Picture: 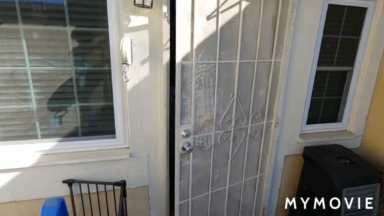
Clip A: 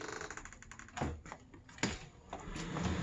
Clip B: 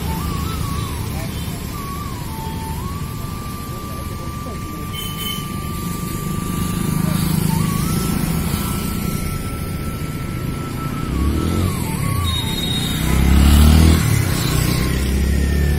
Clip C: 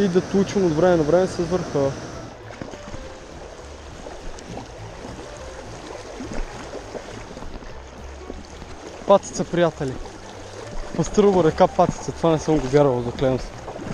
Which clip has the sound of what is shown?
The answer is A